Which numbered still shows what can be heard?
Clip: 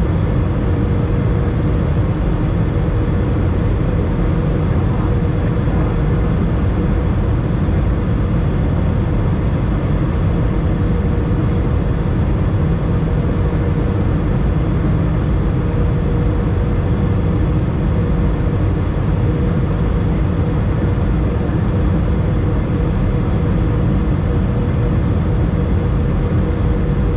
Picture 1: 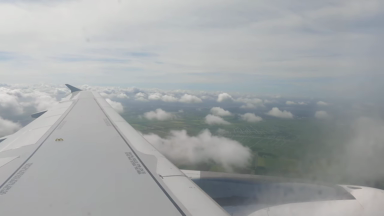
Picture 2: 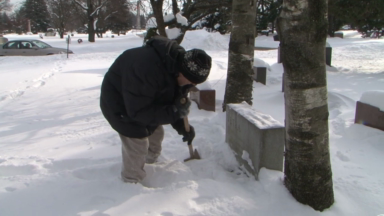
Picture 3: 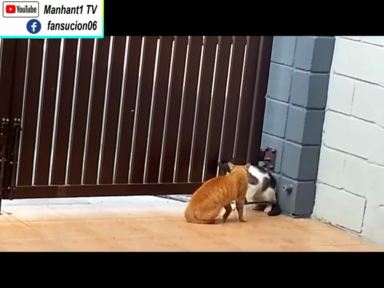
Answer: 1